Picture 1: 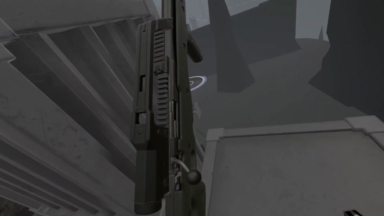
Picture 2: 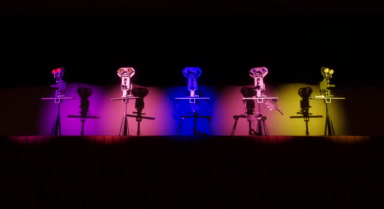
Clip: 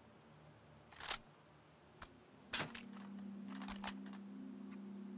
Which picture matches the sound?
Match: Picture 1